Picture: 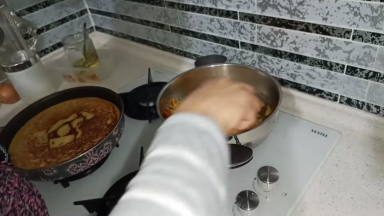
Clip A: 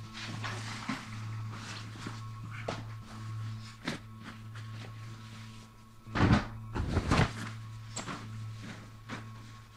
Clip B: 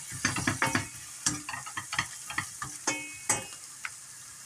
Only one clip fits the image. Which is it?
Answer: B